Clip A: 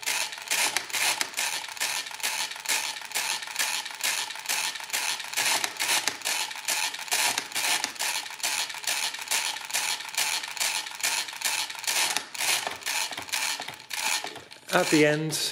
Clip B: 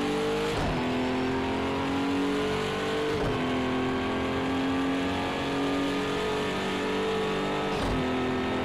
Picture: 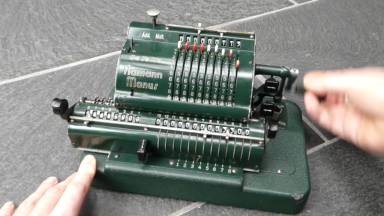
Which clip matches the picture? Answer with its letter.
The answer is A